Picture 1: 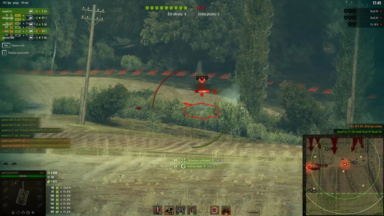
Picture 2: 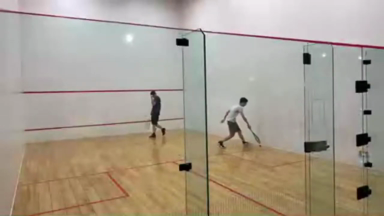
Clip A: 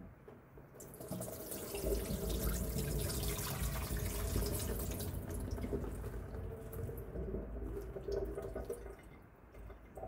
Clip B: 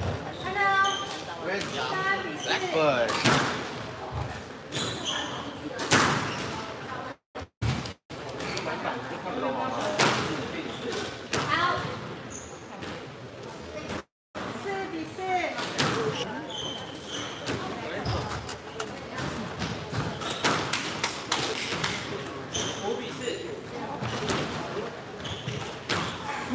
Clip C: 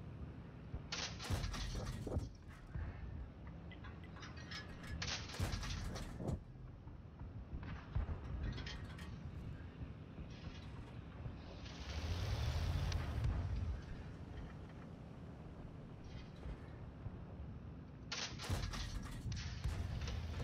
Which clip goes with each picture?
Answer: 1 C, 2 B